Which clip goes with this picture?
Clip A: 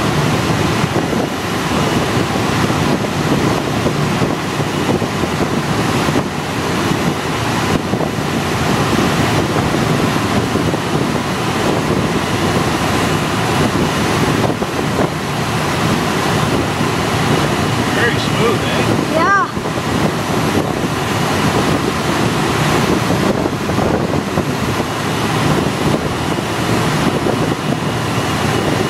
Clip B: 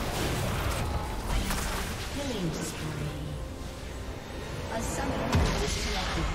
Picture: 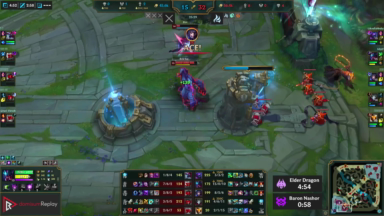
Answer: B